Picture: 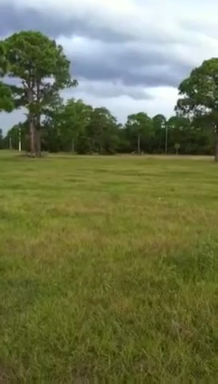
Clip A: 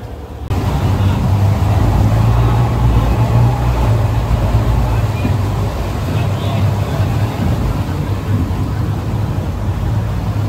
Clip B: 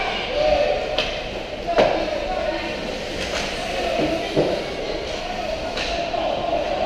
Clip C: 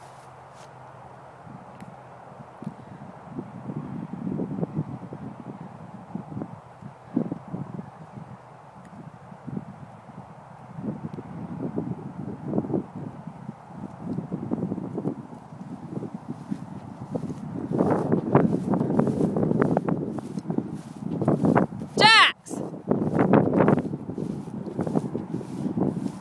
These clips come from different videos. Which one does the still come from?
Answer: C